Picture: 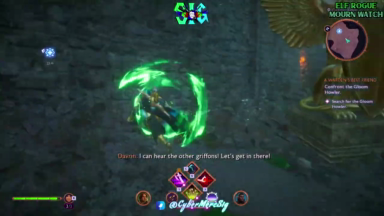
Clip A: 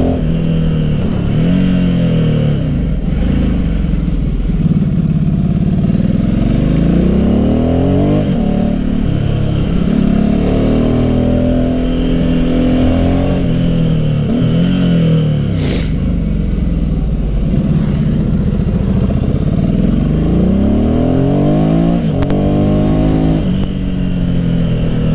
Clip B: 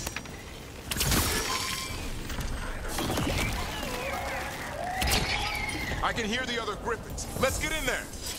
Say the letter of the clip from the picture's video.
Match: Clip B